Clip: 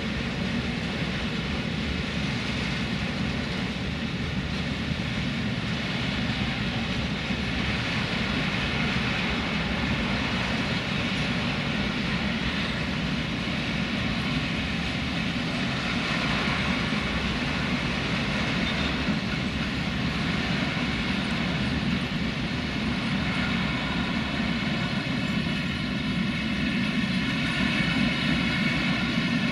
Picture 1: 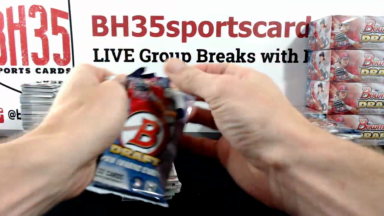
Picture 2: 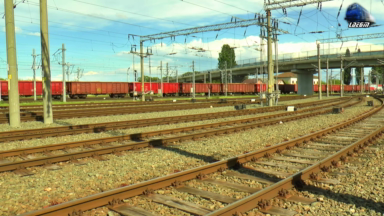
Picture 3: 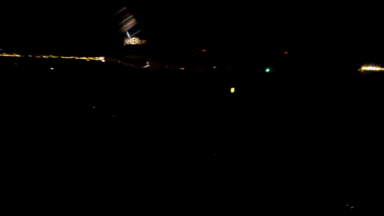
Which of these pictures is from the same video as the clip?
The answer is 2